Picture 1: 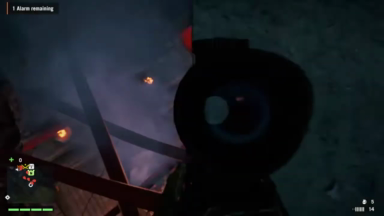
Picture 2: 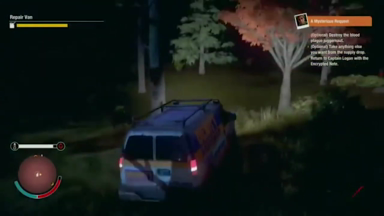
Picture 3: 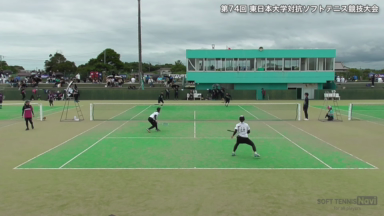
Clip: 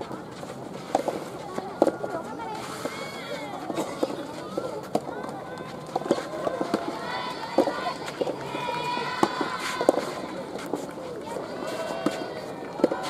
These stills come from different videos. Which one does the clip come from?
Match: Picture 3